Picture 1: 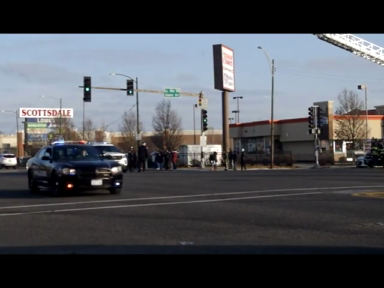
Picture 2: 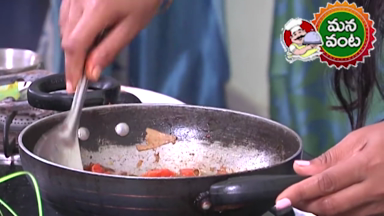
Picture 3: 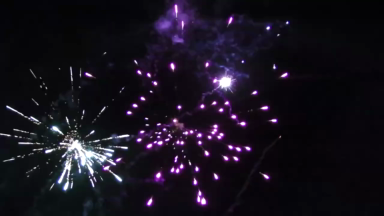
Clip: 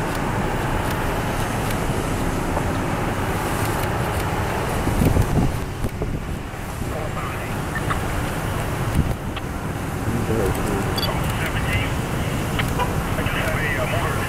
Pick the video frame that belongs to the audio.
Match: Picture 1